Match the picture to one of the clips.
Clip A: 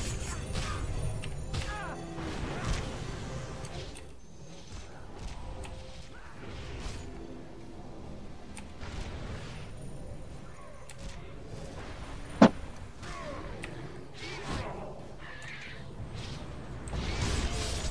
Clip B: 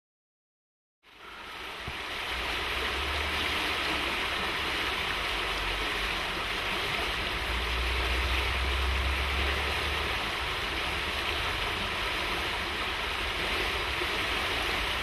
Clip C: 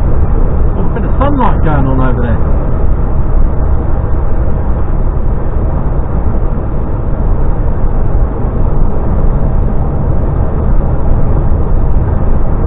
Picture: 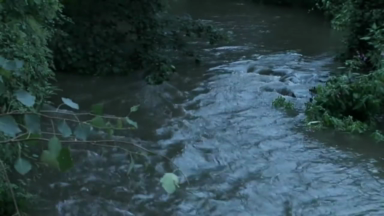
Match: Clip B